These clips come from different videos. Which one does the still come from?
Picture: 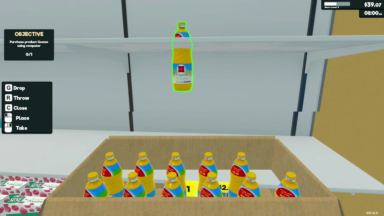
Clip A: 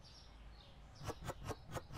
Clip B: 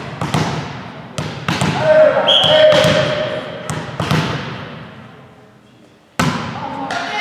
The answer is A